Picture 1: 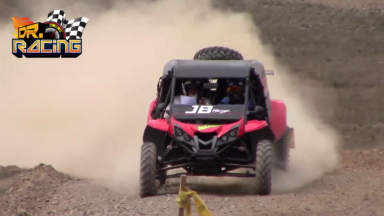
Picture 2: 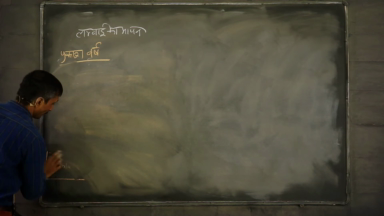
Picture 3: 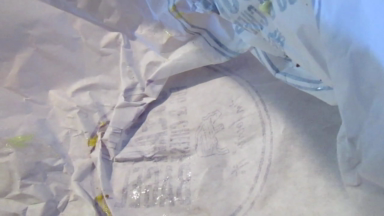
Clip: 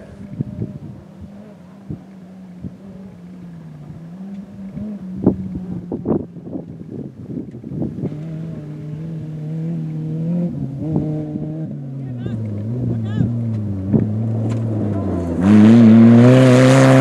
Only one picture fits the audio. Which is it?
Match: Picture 1